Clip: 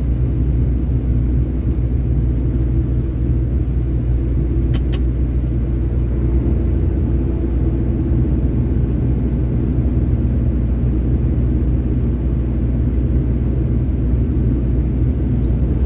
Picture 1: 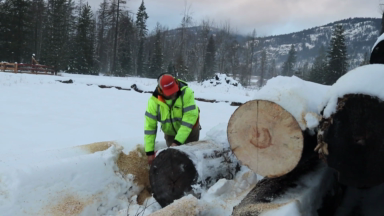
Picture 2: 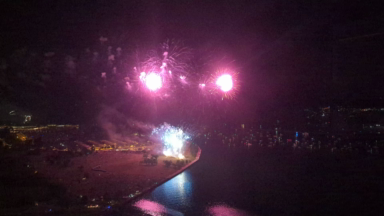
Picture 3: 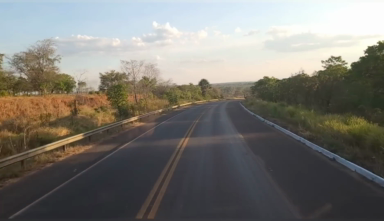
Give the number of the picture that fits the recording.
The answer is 3